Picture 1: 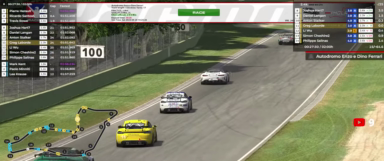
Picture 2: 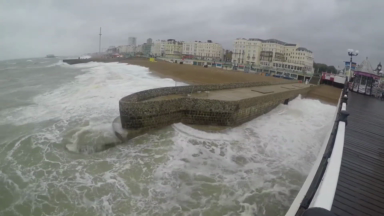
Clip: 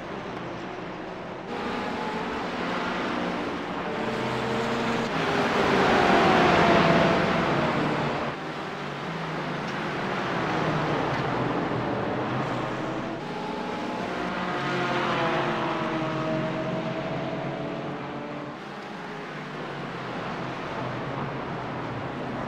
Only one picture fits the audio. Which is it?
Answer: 1